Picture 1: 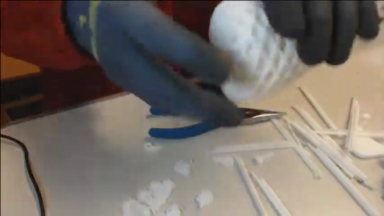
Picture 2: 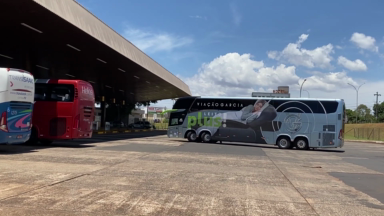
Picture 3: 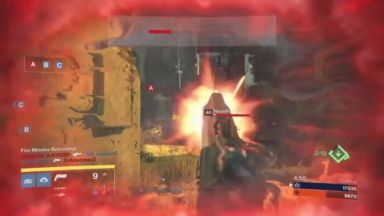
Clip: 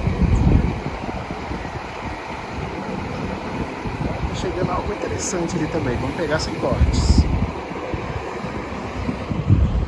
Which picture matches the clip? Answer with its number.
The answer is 2